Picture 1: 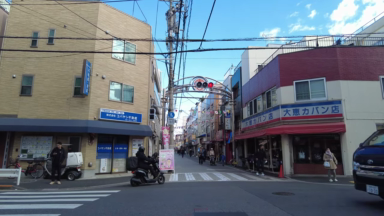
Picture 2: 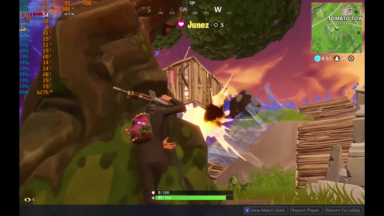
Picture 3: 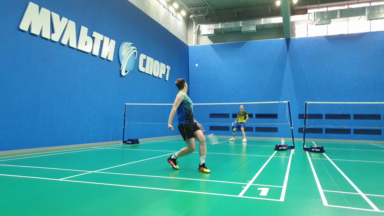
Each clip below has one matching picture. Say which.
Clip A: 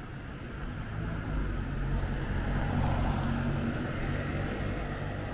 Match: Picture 1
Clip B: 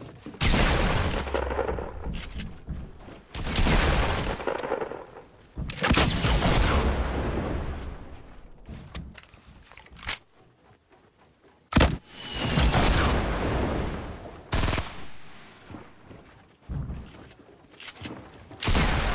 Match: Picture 2